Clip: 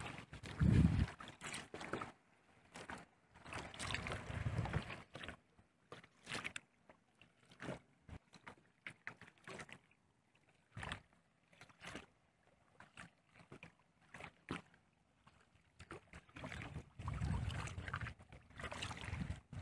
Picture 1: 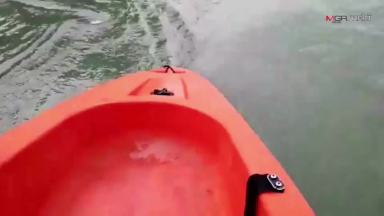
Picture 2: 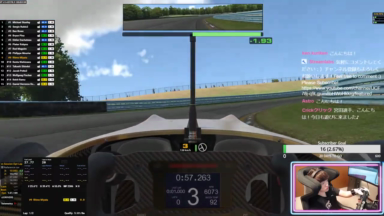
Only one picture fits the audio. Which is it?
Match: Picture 1